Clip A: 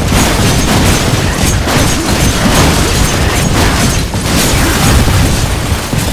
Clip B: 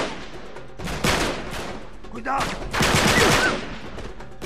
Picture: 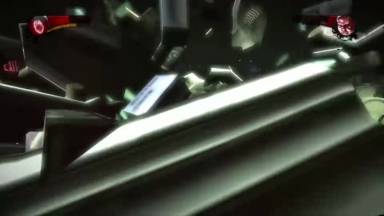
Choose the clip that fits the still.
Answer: A